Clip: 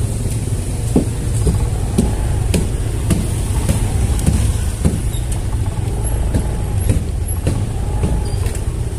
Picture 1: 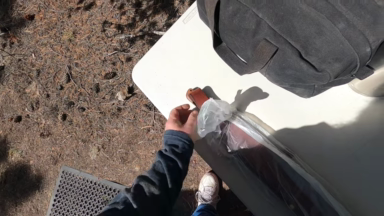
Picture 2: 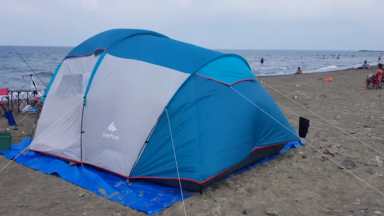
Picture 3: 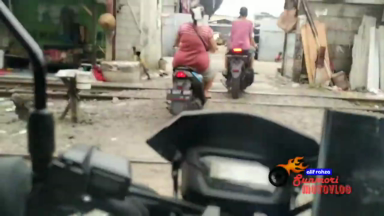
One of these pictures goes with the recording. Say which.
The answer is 3